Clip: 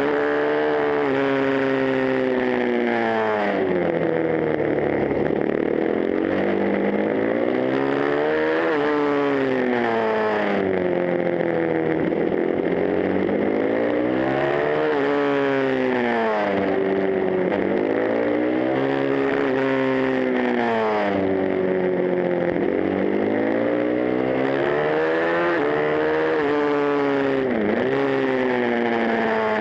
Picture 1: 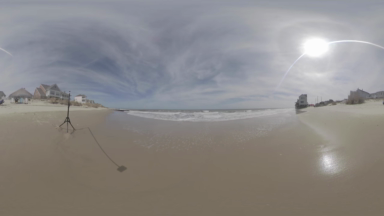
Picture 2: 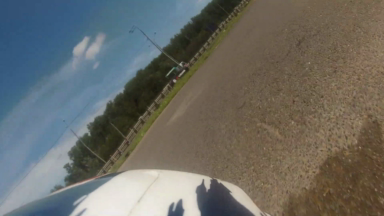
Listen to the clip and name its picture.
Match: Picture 2